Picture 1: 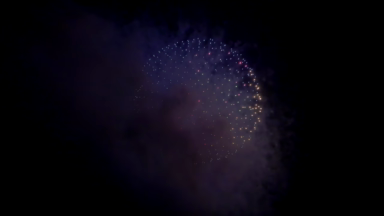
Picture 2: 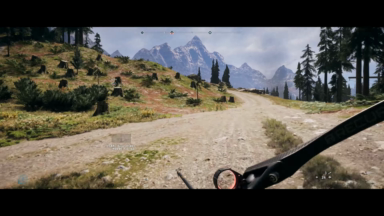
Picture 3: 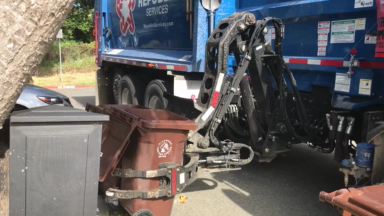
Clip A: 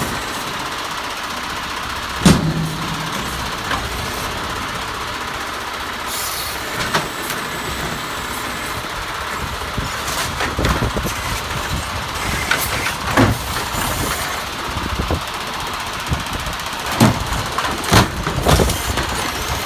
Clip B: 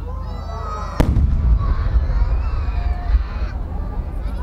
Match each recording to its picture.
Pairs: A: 3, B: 1